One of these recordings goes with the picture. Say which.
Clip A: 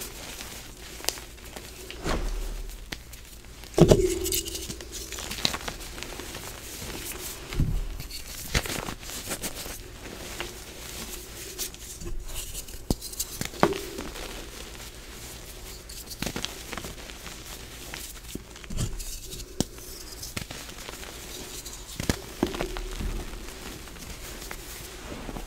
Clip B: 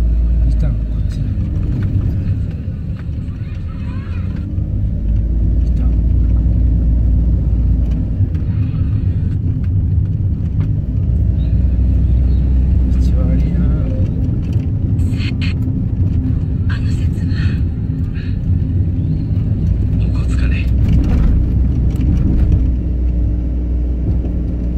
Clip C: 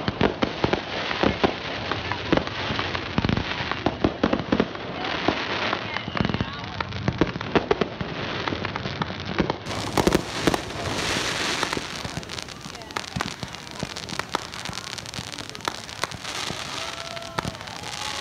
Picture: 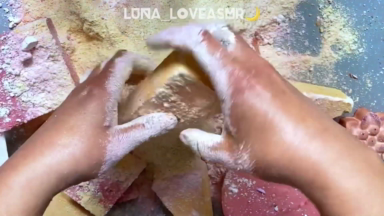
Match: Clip A